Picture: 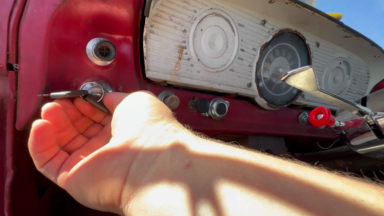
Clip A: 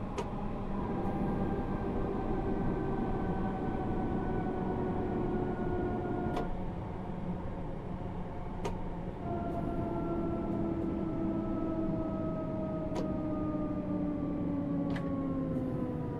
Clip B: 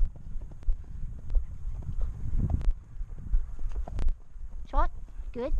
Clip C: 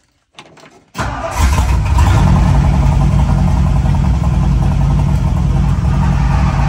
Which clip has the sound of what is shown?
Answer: C